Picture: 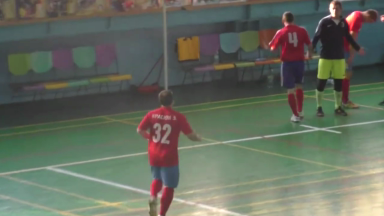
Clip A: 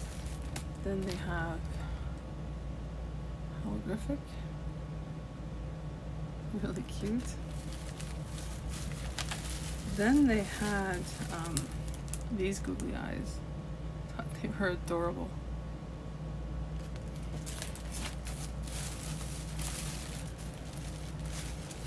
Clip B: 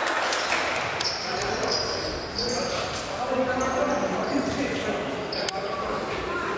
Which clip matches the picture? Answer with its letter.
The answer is B